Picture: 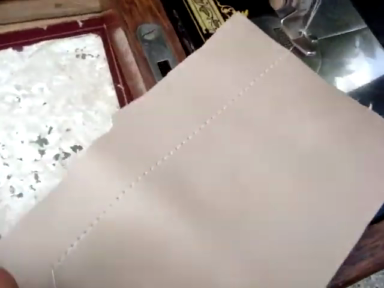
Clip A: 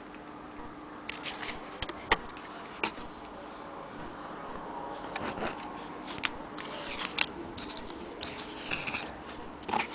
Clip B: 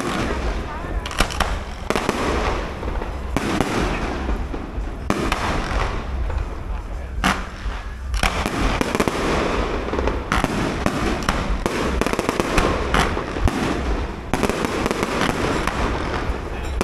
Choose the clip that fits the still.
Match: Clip A